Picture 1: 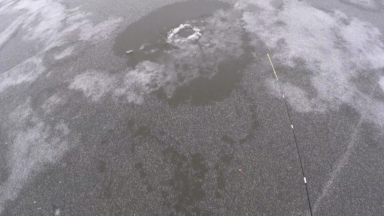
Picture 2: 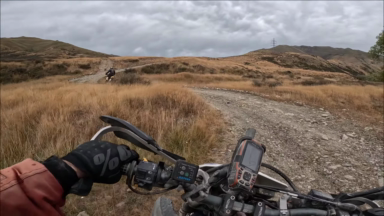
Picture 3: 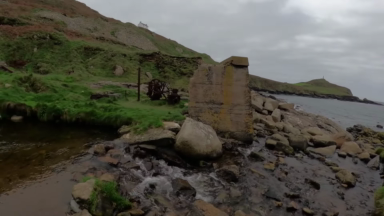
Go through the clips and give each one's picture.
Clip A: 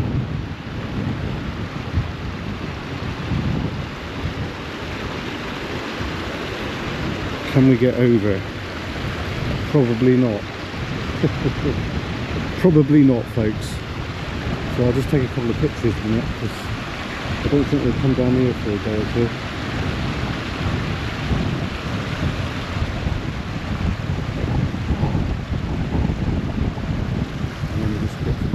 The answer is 3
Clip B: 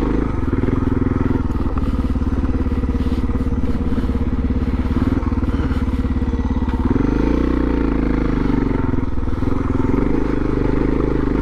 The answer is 2